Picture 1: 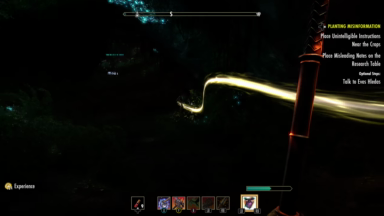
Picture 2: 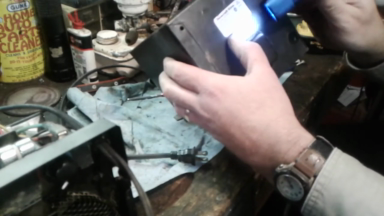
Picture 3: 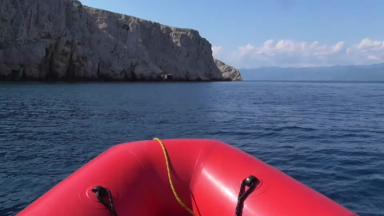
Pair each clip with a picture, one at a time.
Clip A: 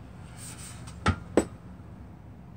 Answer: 2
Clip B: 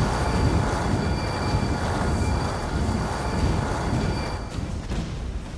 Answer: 1